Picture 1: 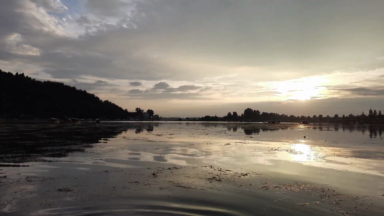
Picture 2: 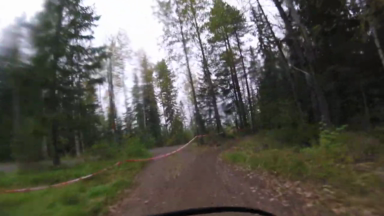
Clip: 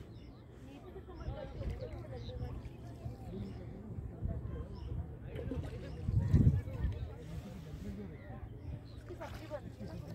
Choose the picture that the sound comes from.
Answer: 1